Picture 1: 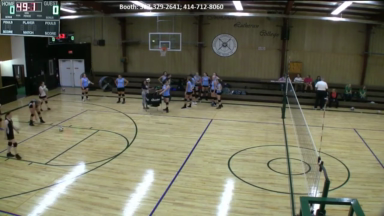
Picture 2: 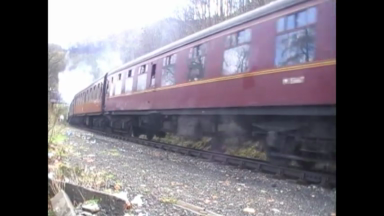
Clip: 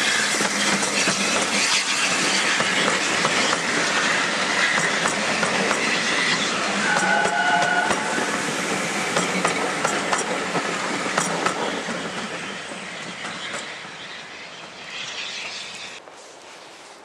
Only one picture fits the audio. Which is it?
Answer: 2